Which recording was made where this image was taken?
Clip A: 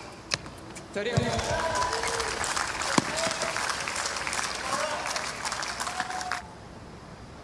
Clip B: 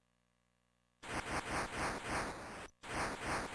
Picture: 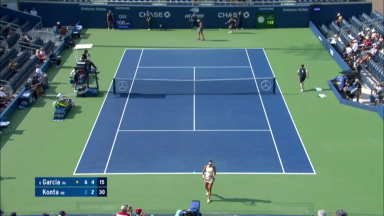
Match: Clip A